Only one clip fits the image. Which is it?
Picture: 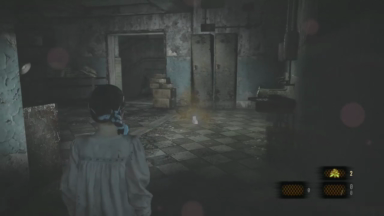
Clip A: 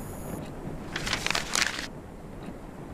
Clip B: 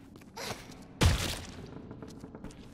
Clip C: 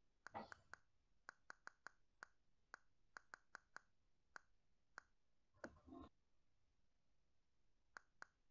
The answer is B